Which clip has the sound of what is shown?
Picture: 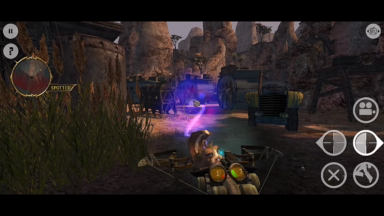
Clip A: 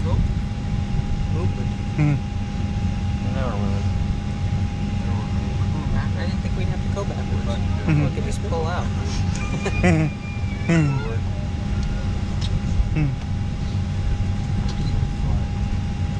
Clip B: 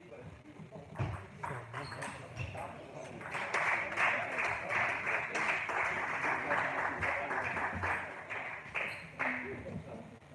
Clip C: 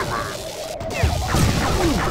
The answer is C